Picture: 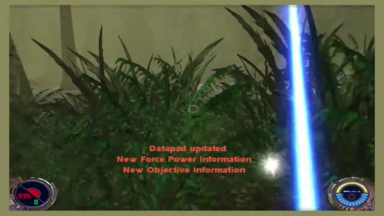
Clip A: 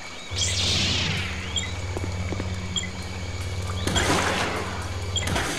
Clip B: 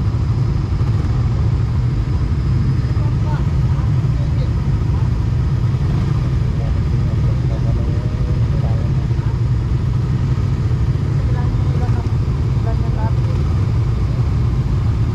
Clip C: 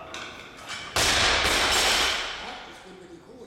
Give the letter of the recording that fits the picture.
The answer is A